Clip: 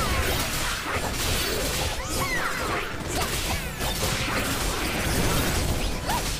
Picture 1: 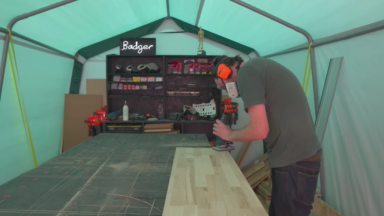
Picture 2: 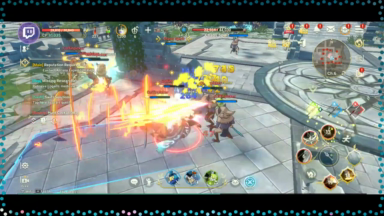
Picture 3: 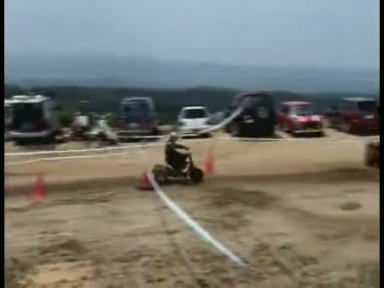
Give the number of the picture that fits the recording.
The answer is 2